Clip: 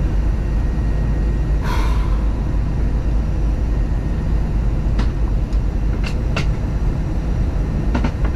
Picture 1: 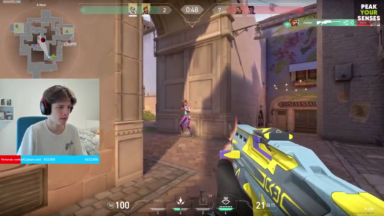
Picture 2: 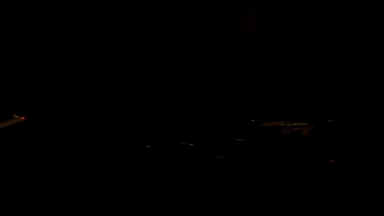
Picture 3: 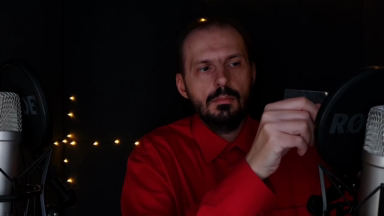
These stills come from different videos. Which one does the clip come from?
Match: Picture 2